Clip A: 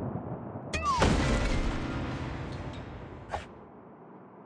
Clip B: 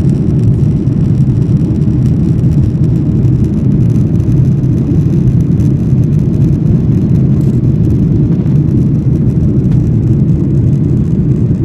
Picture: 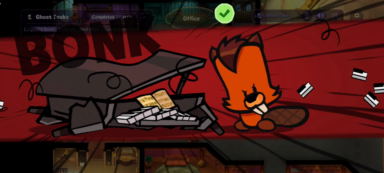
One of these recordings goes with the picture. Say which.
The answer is A